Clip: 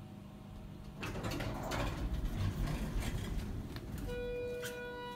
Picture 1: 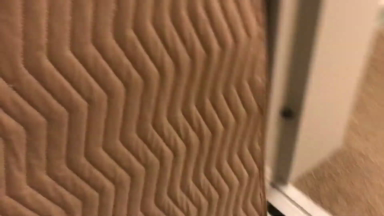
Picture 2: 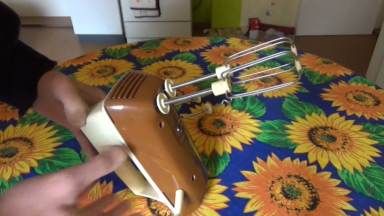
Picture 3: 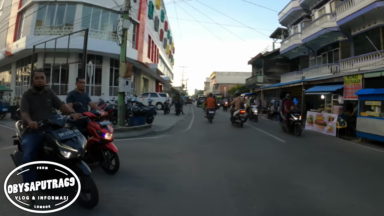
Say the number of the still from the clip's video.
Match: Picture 1